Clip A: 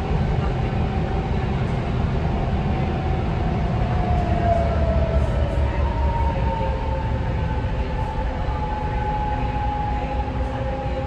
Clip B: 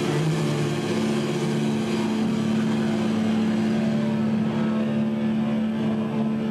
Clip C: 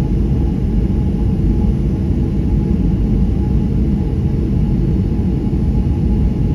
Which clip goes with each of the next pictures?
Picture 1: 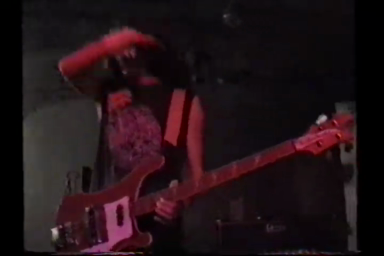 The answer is B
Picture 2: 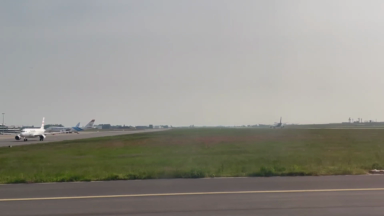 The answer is C